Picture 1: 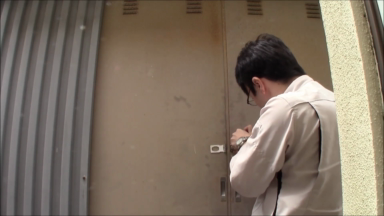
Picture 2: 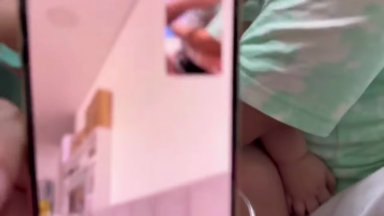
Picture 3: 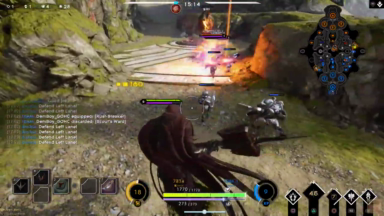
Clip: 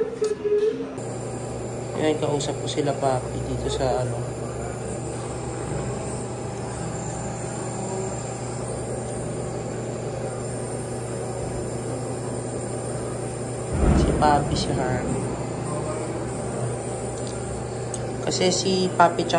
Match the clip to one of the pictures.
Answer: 2